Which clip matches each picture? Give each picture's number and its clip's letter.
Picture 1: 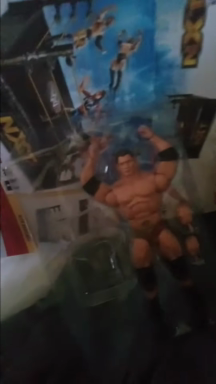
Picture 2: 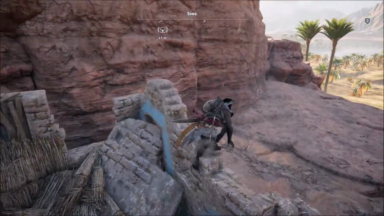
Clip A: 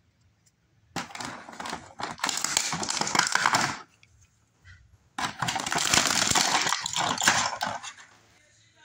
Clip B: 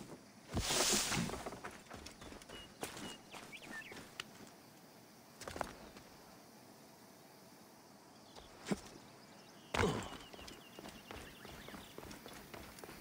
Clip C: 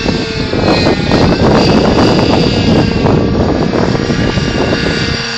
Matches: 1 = A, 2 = B